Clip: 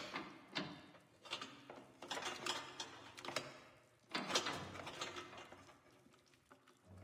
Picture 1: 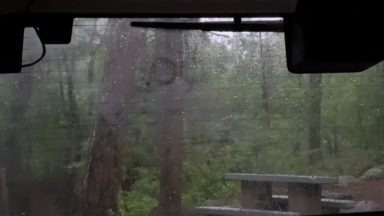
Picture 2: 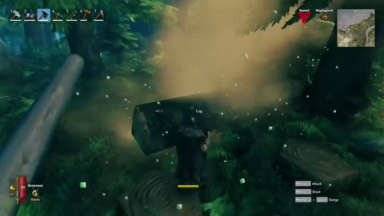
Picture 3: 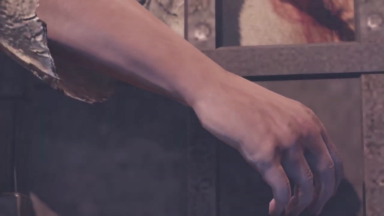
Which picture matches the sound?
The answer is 3